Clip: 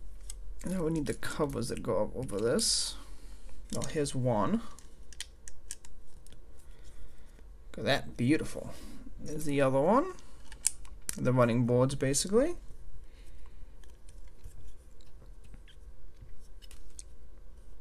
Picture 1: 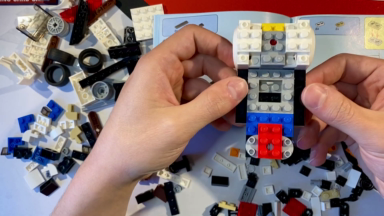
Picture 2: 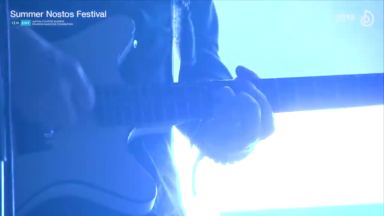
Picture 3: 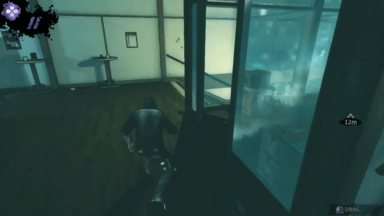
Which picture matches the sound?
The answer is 1